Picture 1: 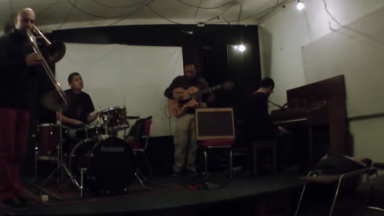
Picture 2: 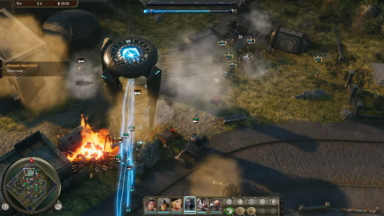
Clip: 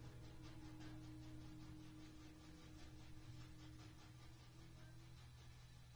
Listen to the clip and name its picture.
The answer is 1